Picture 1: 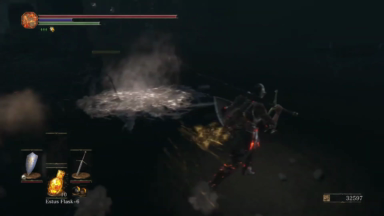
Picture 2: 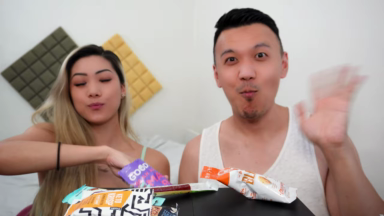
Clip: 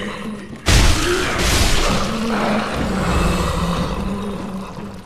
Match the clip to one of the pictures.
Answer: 1